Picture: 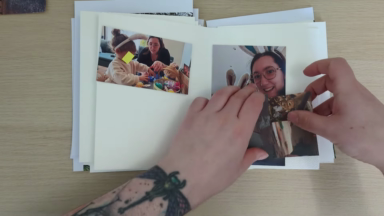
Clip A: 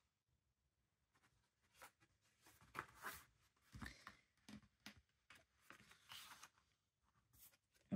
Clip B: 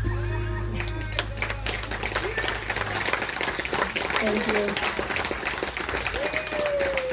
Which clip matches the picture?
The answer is A